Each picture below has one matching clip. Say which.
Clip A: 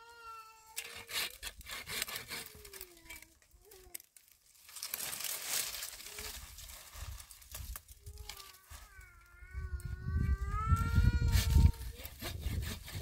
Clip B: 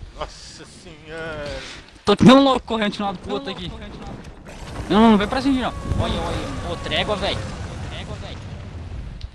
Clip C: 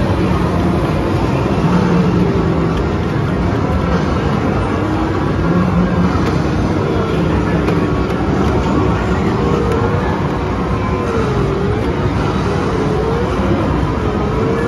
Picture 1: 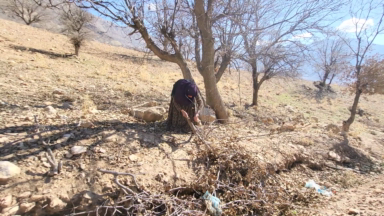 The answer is A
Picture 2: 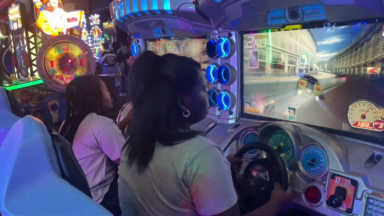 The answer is C